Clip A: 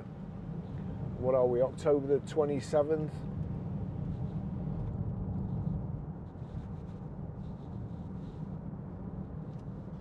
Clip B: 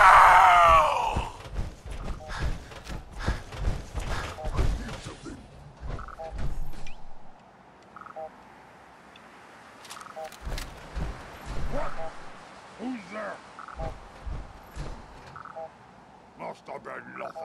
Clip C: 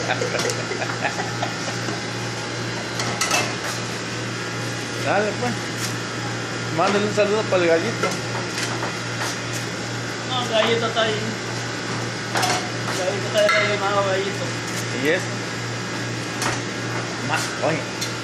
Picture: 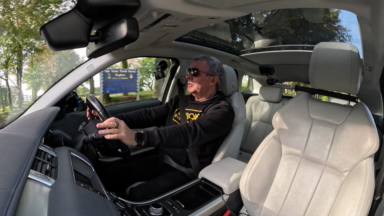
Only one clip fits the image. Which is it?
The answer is A